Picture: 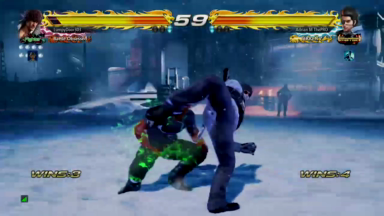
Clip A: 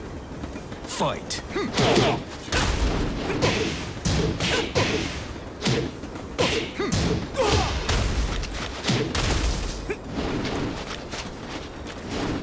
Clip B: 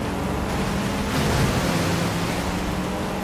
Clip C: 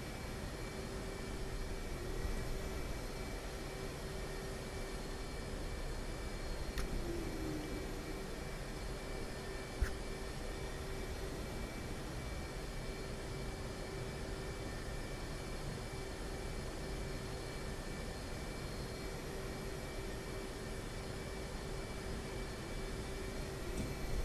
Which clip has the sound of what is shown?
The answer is A